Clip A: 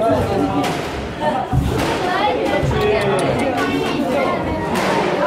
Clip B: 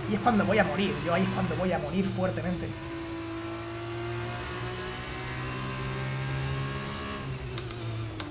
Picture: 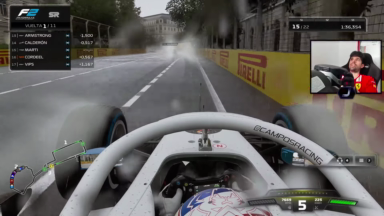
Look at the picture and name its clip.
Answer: B